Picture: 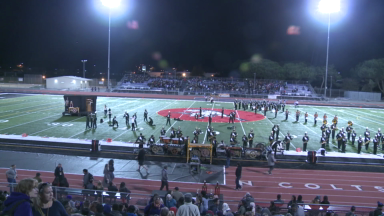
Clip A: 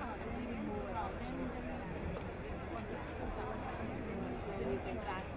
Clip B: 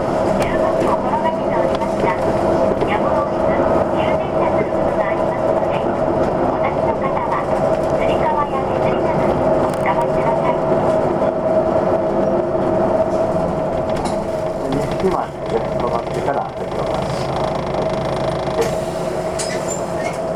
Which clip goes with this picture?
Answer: A